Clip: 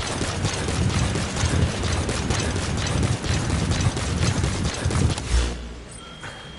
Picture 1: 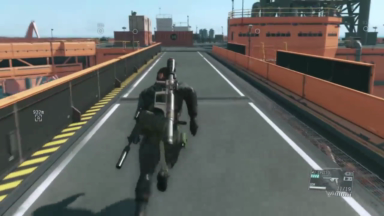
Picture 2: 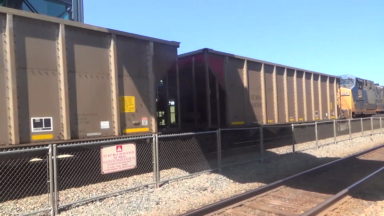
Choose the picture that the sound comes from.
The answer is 1